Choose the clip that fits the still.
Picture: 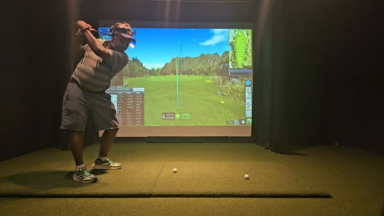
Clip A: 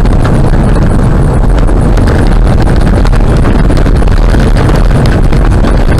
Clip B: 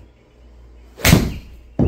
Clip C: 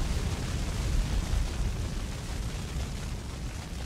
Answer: B